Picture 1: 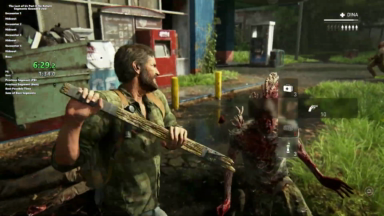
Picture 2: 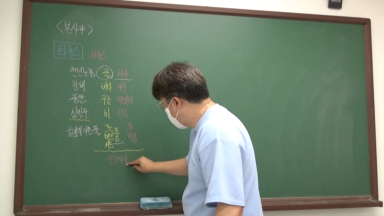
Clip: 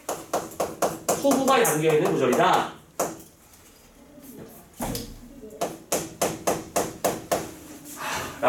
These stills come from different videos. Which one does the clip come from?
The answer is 2